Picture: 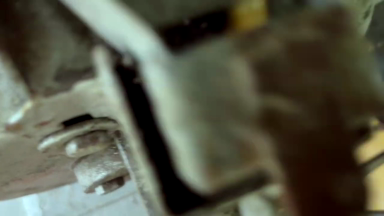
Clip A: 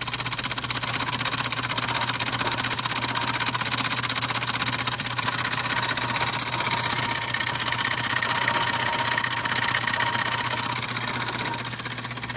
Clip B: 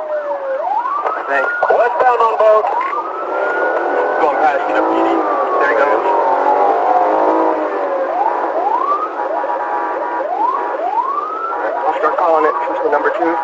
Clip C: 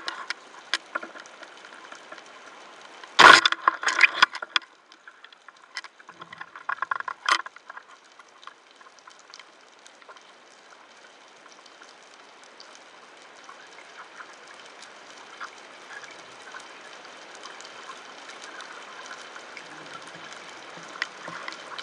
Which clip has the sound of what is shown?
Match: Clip A